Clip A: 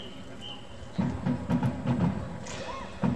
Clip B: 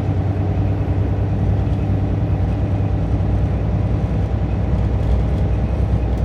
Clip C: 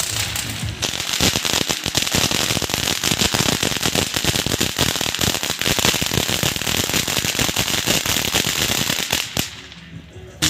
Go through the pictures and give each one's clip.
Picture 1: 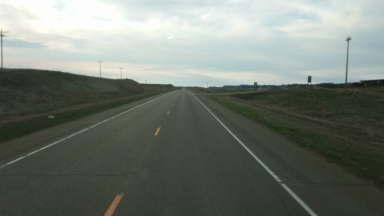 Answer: B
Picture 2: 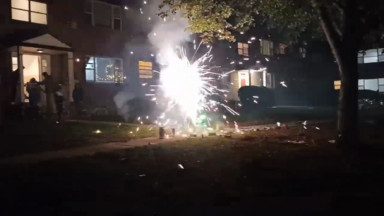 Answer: C